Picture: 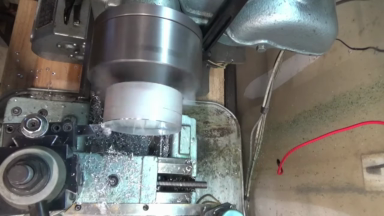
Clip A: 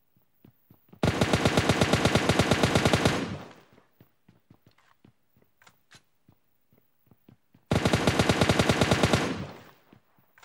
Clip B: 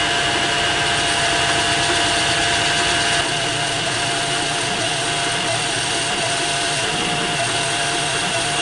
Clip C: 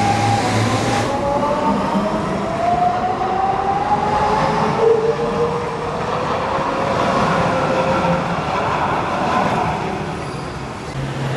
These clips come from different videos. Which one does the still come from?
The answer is B